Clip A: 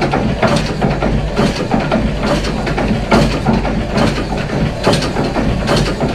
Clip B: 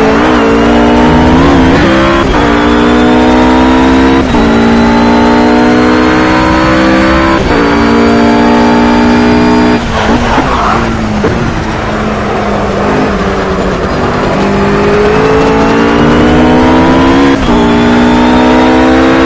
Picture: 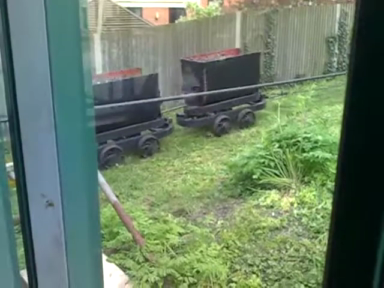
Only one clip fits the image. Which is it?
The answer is A